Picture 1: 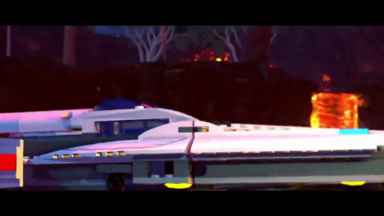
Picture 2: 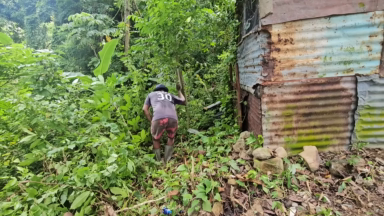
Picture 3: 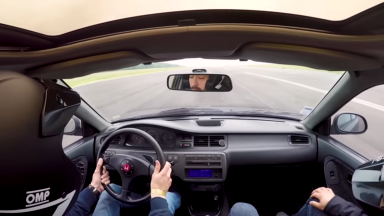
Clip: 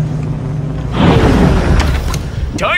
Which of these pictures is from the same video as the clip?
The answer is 1